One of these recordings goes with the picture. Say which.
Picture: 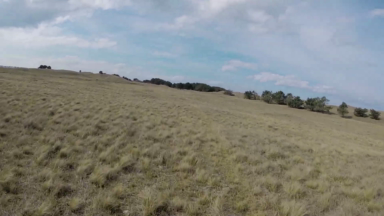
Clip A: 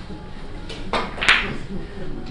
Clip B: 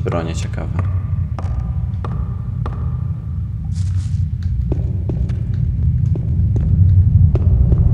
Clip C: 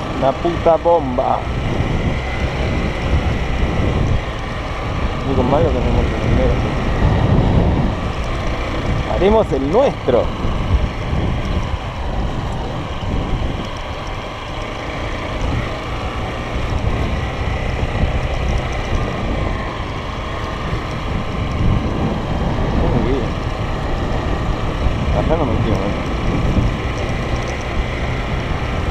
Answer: C